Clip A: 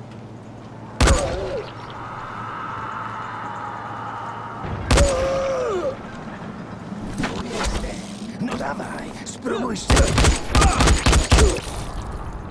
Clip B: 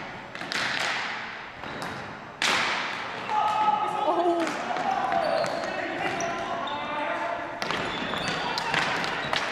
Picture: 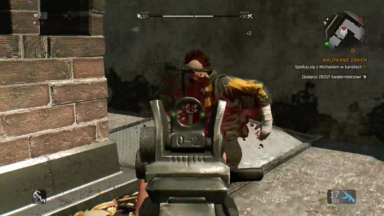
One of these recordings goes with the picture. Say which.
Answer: A